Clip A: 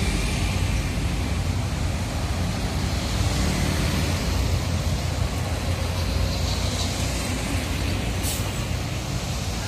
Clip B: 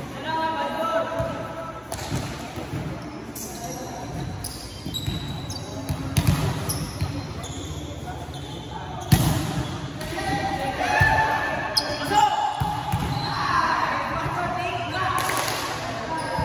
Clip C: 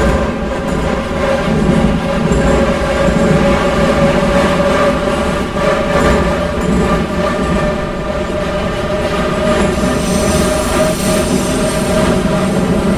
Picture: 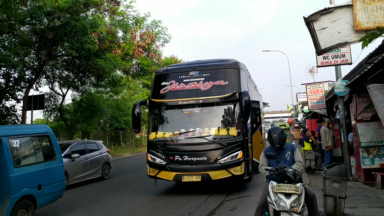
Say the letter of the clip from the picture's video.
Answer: A